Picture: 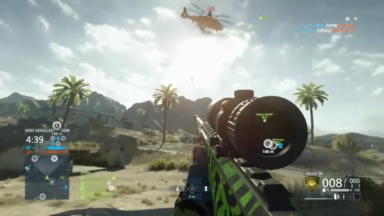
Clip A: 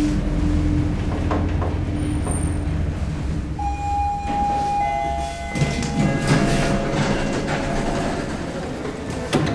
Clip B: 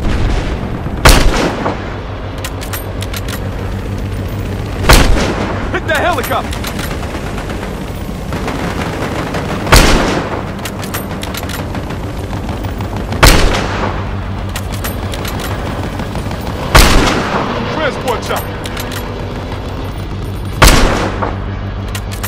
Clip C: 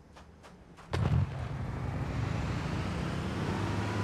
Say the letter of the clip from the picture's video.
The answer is B